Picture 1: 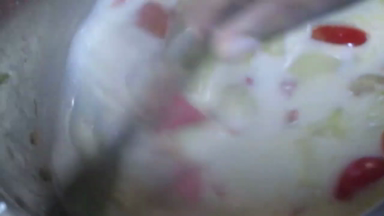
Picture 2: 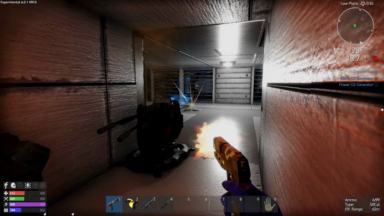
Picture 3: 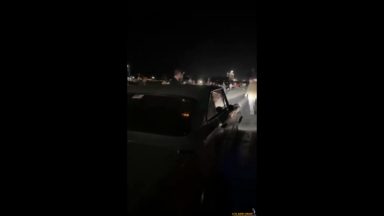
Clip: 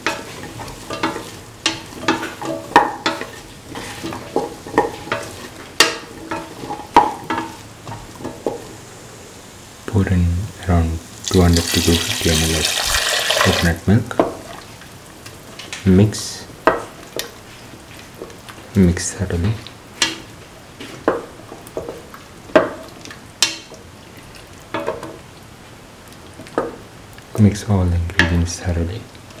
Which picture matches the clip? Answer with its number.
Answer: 1